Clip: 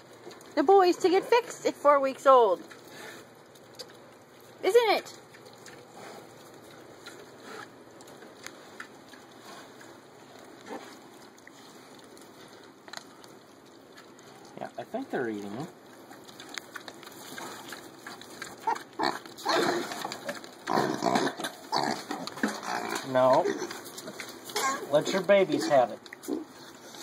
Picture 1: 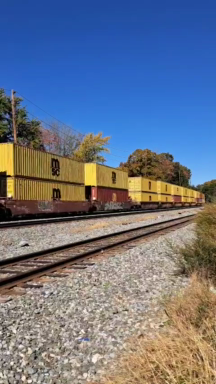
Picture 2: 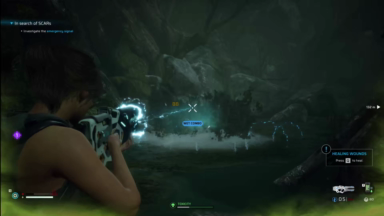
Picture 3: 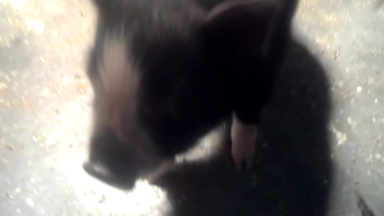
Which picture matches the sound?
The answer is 3